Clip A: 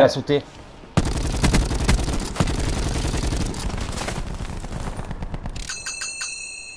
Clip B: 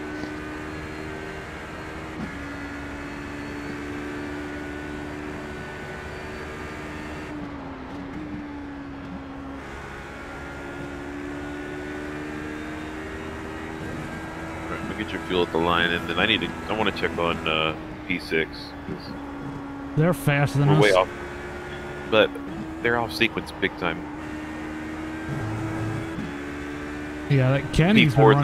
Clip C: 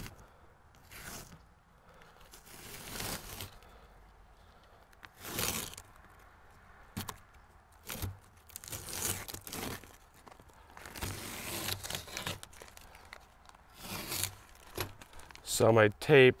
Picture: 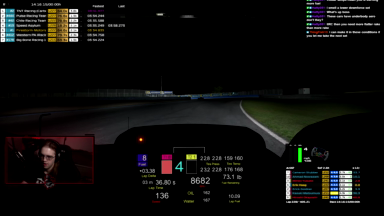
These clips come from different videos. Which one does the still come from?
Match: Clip B